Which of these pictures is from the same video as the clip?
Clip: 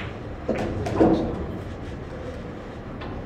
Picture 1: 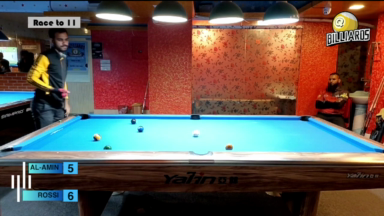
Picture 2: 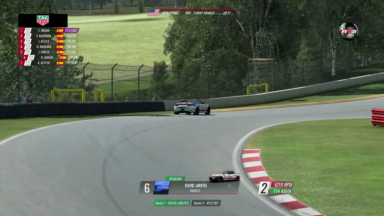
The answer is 1